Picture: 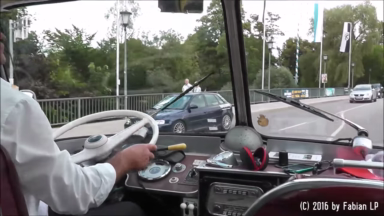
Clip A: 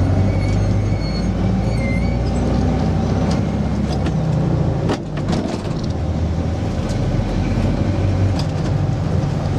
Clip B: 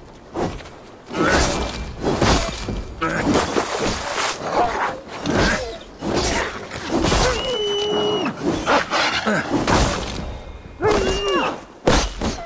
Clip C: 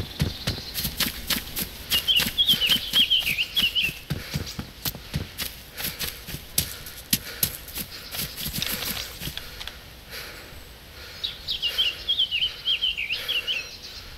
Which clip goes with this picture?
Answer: A